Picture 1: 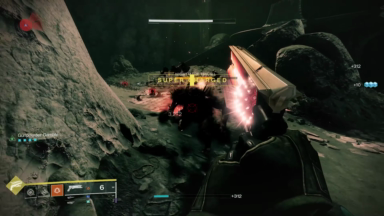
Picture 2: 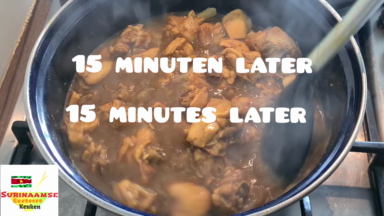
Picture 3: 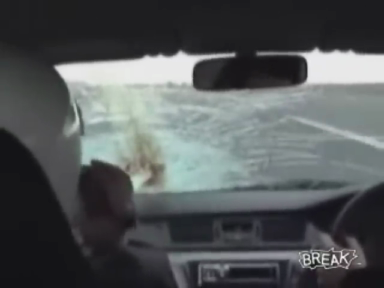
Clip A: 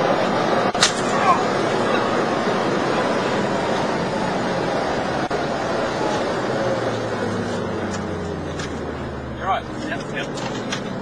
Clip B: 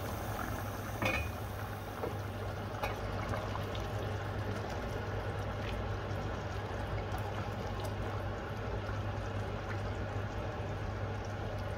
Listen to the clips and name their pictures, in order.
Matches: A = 3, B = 2